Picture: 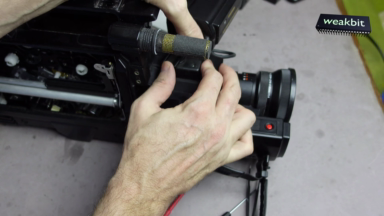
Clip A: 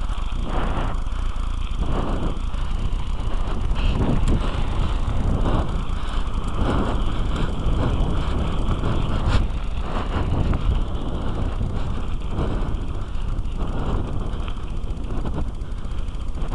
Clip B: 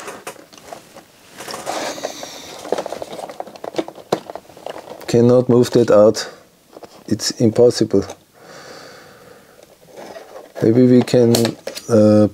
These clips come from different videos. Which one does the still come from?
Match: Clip B